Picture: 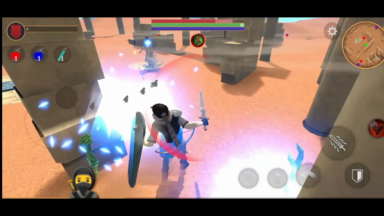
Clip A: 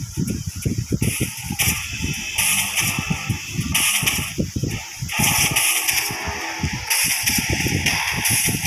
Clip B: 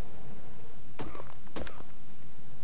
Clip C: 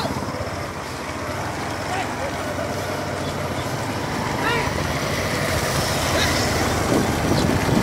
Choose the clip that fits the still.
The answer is A